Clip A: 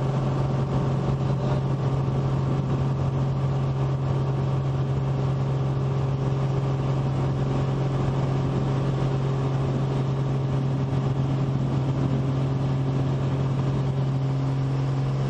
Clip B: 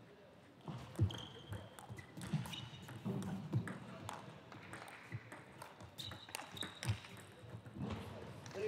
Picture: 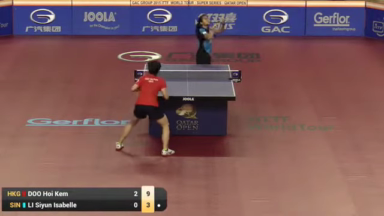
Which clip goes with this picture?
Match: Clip B